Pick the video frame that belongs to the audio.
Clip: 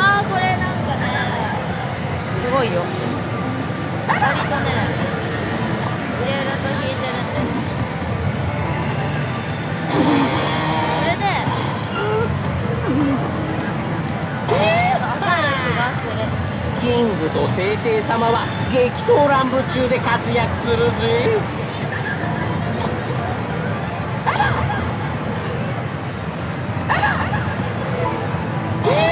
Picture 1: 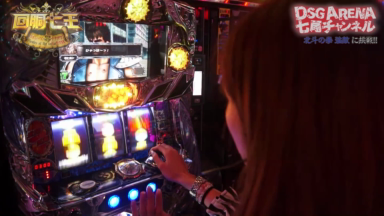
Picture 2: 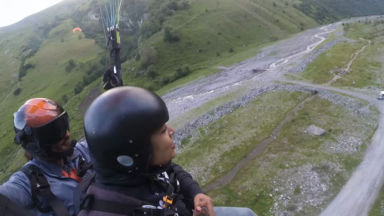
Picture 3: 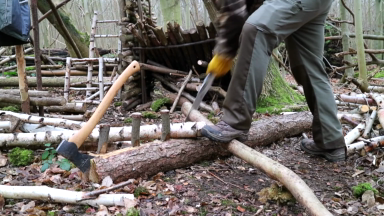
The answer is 1